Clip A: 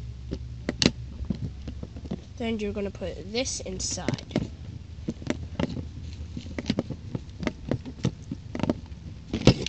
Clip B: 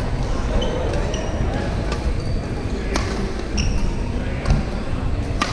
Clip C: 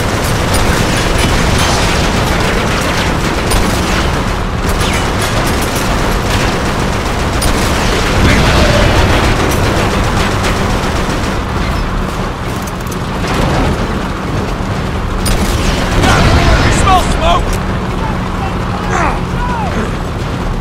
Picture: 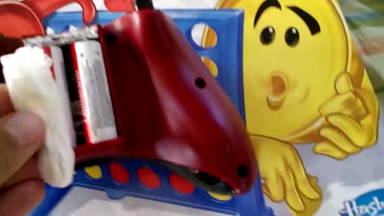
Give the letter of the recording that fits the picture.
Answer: A